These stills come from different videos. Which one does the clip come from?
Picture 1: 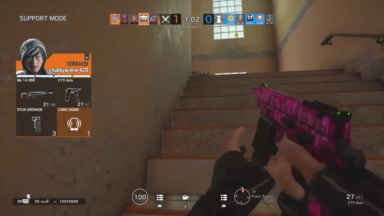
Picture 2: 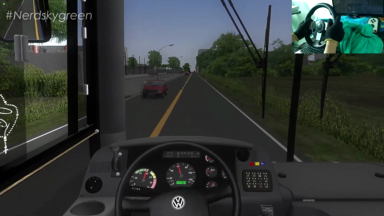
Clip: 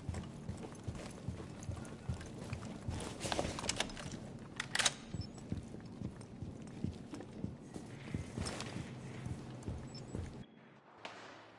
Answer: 1